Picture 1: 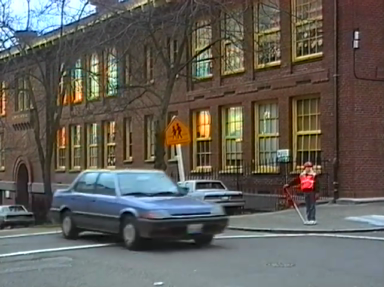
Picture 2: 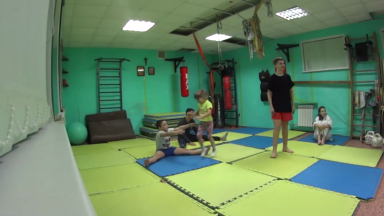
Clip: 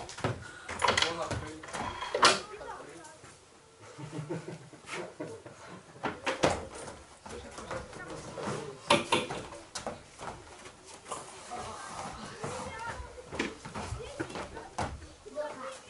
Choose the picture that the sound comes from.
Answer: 2